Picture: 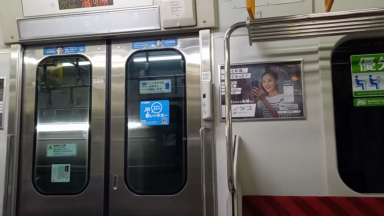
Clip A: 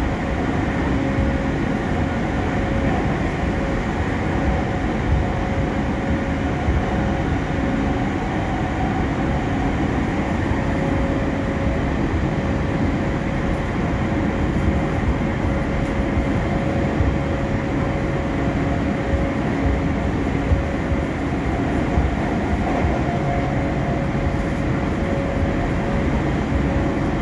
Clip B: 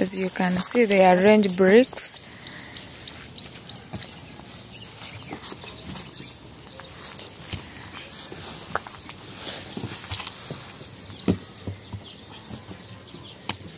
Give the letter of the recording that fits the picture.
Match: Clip A